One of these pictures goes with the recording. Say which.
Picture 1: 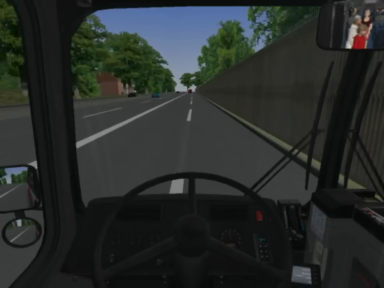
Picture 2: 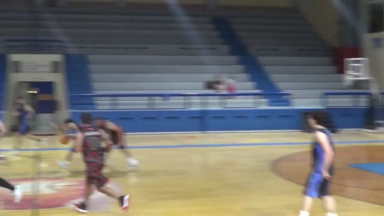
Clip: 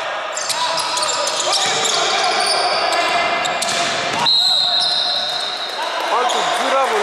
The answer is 2